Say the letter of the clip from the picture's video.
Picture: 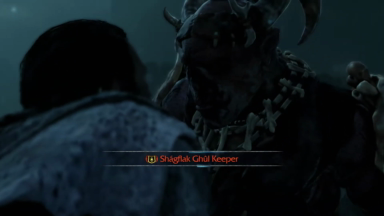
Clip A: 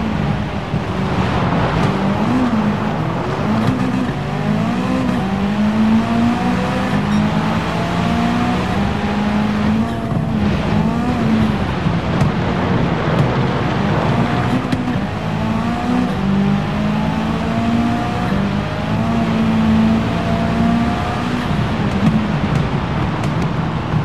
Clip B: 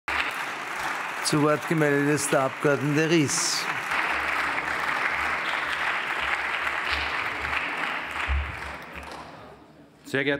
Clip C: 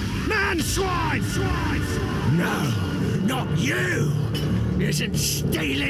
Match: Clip C